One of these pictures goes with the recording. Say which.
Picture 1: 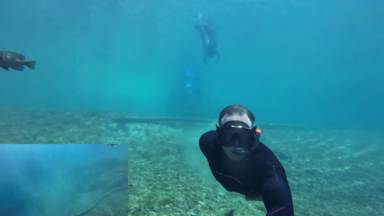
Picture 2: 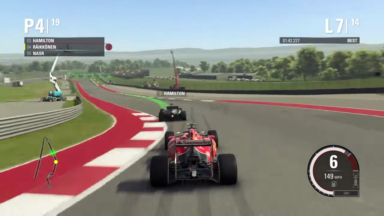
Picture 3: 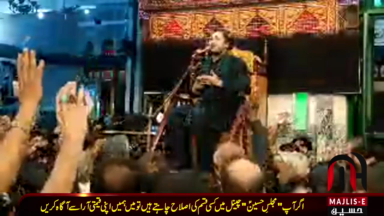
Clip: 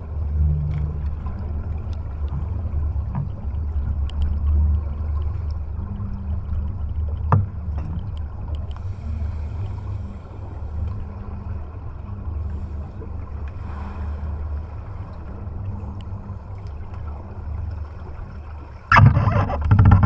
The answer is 1